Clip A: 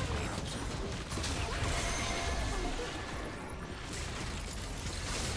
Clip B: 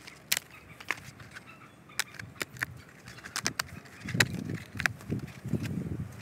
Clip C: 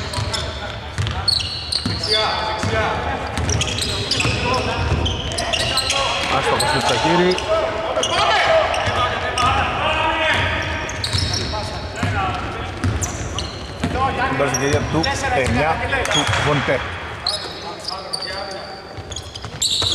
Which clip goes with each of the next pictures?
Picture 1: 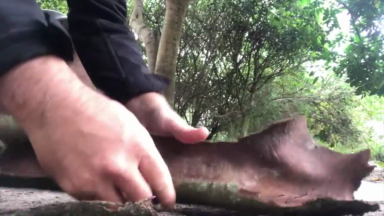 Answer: B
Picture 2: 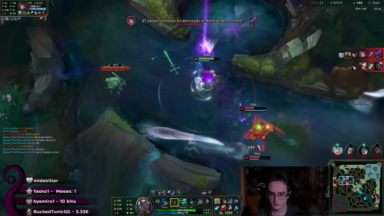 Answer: A